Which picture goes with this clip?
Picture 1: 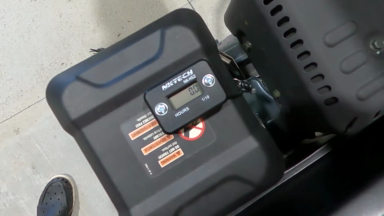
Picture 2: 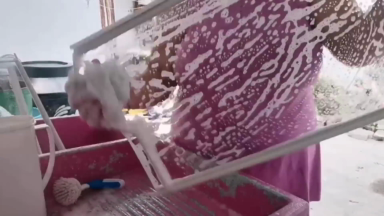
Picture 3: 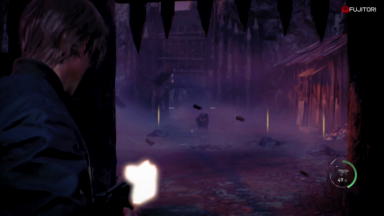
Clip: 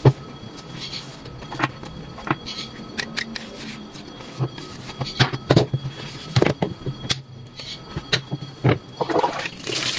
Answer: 2